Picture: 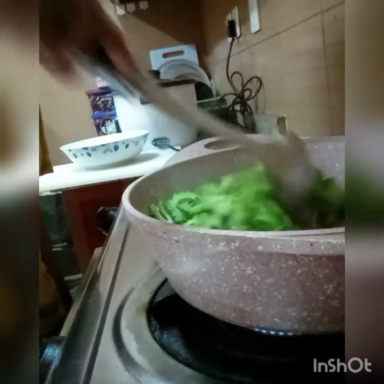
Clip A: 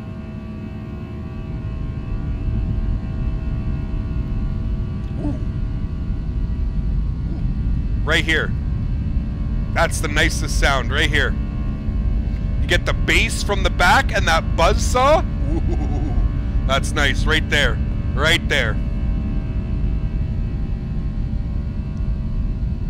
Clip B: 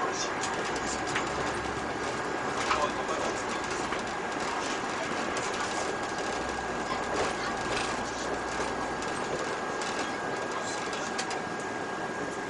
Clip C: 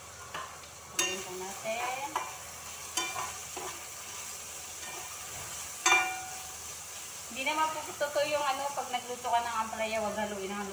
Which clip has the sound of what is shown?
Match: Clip C